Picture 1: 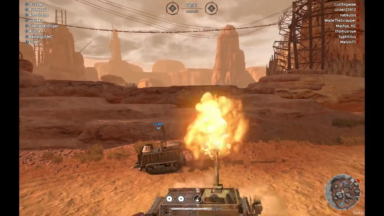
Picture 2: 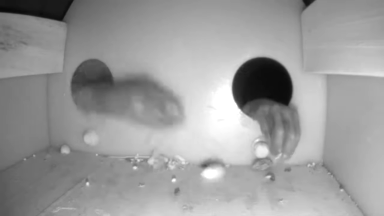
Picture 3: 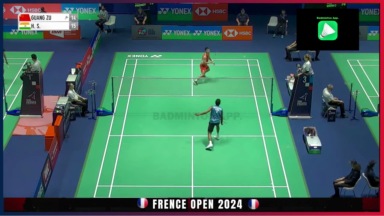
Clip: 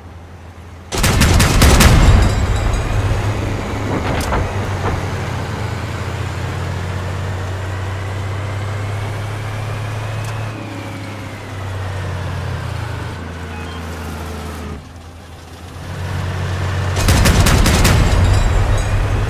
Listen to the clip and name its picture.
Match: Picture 1